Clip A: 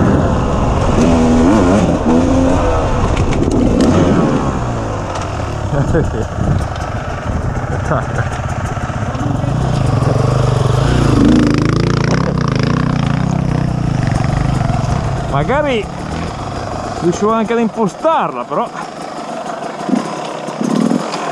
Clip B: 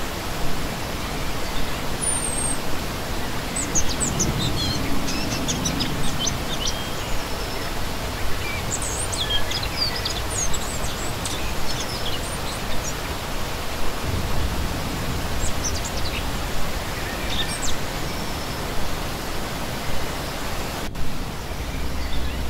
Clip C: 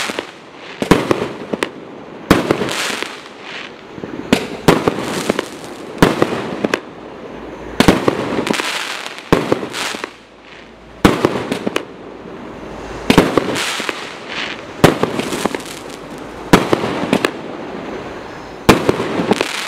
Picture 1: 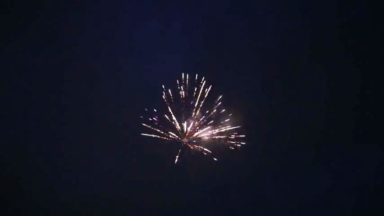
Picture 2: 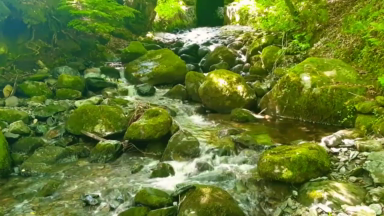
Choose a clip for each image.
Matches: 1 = C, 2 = B